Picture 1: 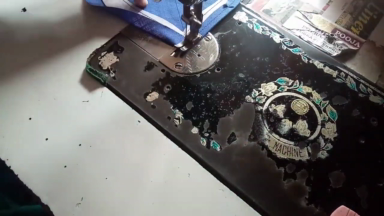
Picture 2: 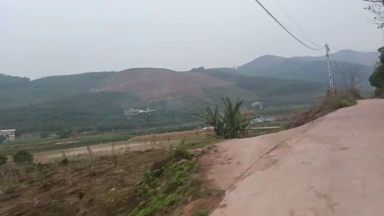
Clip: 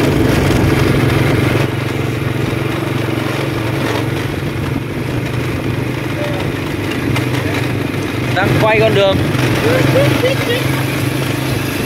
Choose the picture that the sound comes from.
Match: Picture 2